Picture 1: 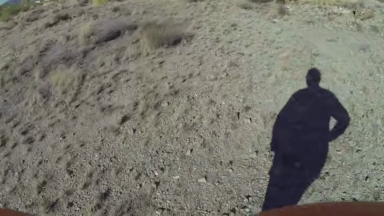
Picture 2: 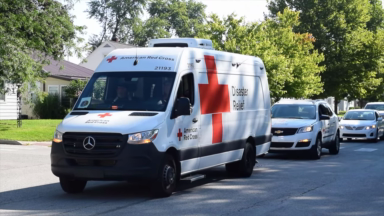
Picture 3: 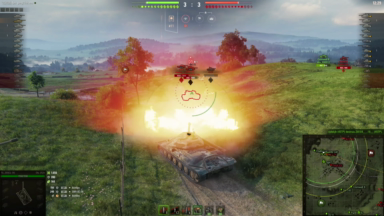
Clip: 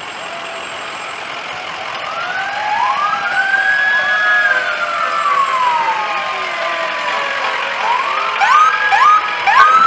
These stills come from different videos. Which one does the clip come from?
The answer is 2